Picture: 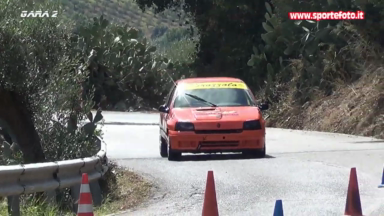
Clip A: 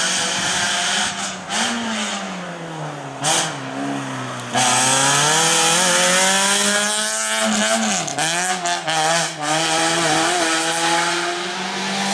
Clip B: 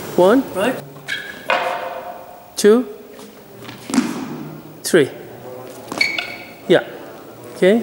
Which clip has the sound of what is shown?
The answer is A